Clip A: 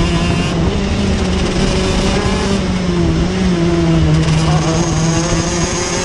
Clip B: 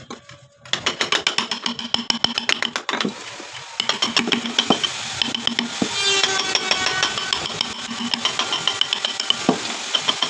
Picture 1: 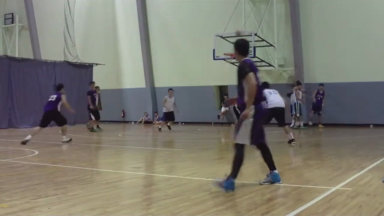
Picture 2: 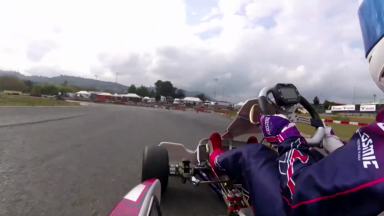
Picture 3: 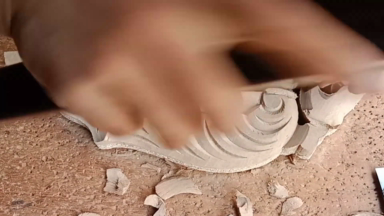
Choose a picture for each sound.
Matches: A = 2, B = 3